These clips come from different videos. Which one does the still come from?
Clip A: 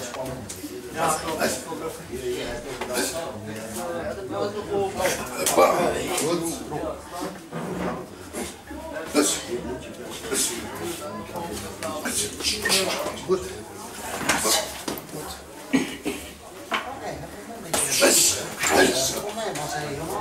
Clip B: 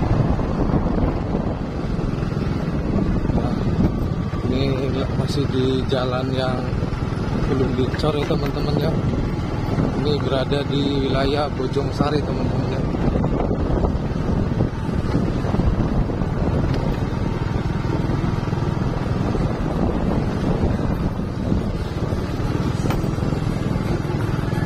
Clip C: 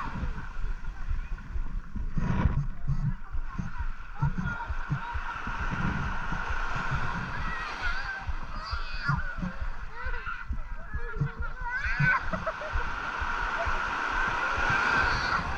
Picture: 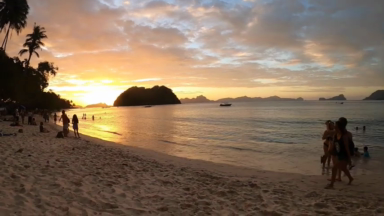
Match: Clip C